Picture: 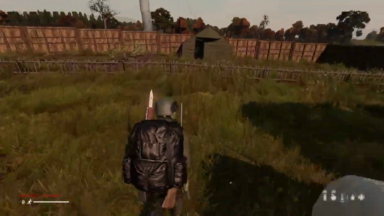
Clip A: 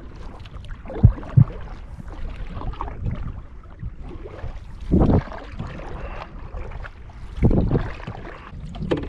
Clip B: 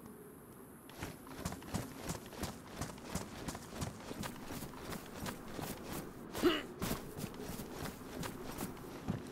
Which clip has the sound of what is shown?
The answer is B